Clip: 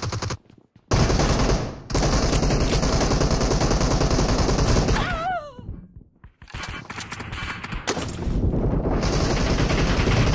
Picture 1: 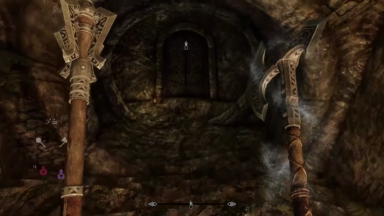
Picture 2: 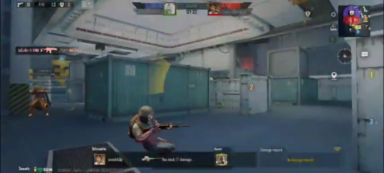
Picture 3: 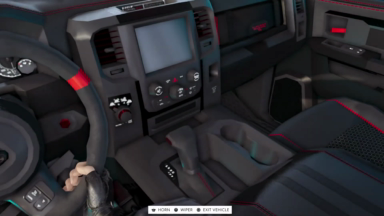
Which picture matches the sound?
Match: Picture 2